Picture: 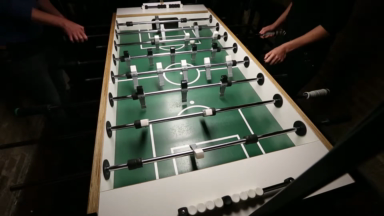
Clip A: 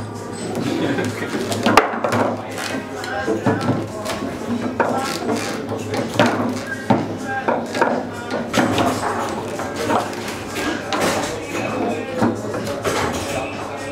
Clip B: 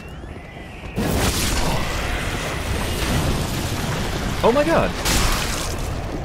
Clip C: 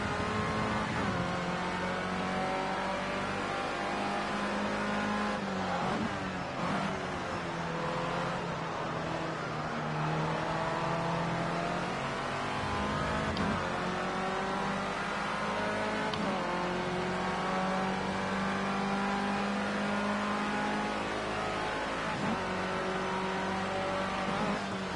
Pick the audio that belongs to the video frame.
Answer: A